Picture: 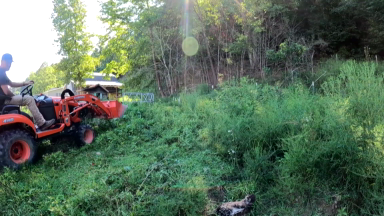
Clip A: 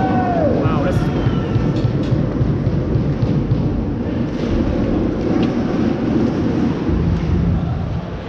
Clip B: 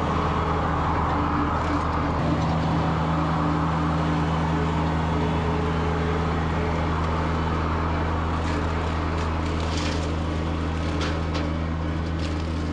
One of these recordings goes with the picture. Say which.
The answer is B